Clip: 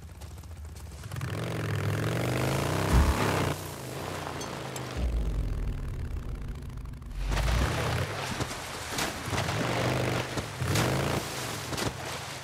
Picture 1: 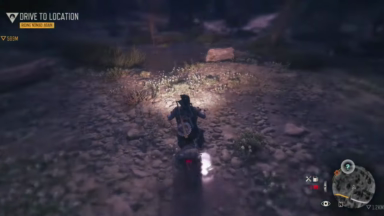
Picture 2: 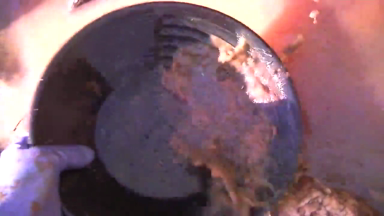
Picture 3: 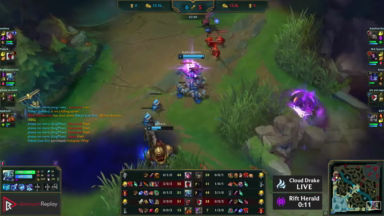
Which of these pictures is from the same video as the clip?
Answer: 1